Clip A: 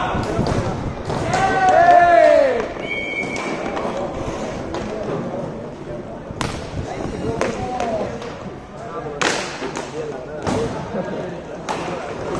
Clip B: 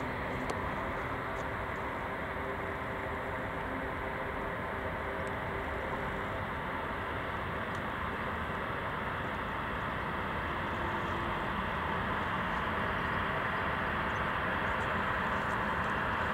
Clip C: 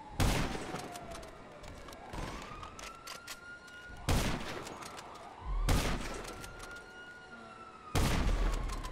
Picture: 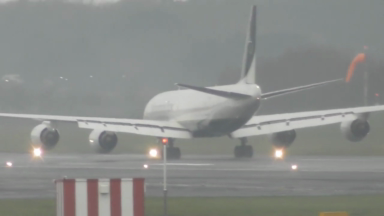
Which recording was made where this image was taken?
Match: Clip B